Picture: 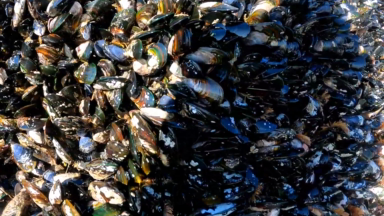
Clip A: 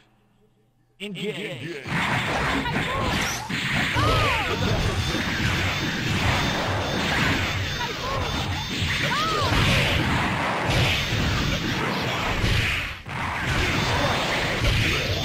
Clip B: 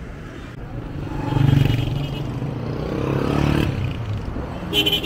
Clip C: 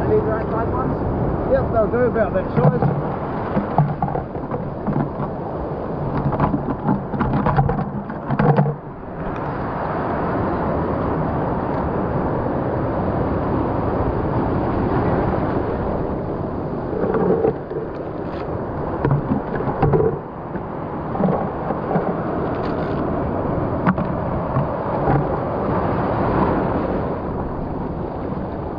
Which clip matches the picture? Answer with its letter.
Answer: C